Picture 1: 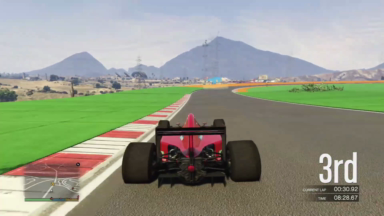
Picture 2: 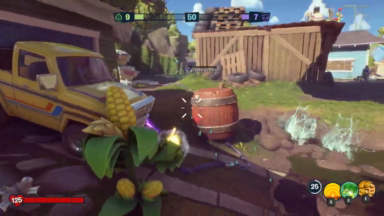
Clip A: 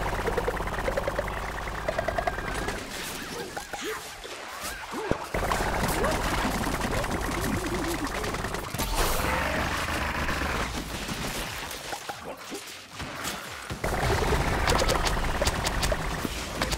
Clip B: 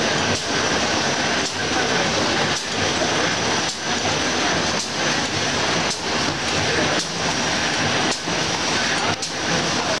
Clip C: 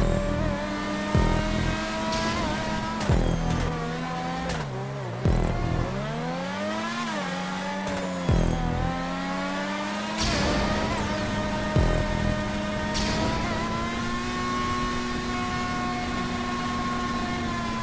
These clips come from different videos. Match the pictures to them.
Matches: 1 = C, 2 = A